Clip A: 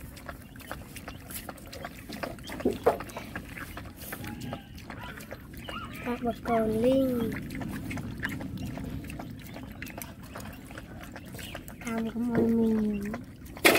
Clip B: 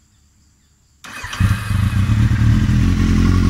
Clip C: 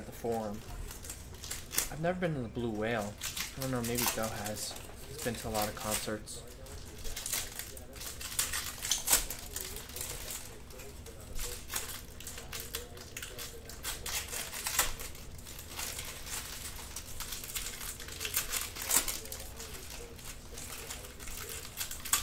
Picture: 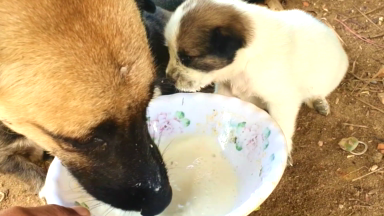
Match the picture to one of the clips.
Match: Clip A